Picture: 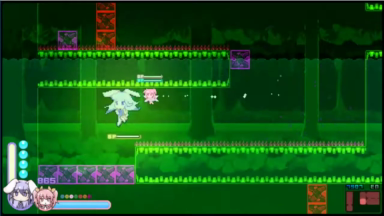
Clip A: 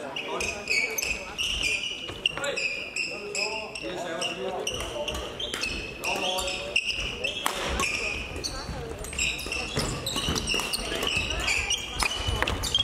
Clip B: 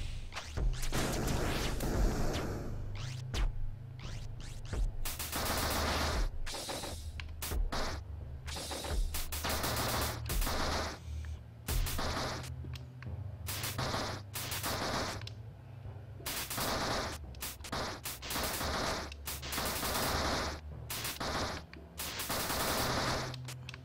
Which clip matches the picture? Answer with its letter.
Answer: B